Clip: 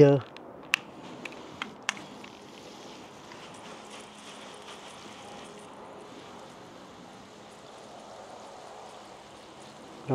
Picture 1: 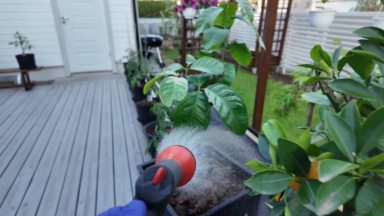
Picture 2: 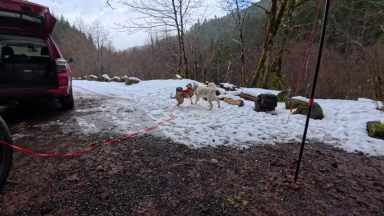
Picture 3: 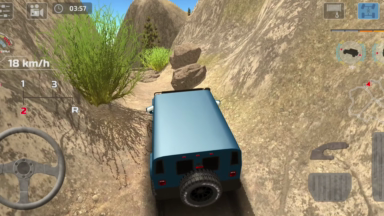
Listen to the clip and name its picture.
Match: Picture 1